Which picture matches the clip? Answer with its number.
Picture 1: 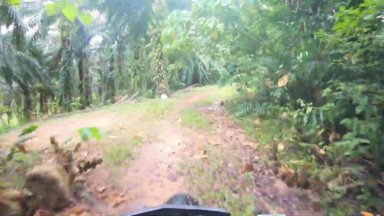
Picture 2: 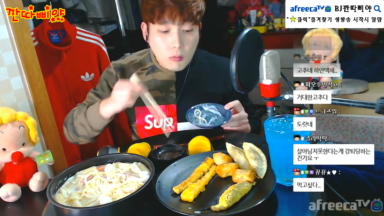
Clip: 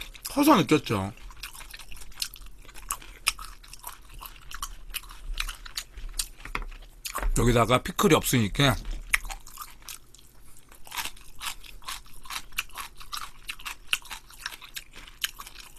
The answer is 2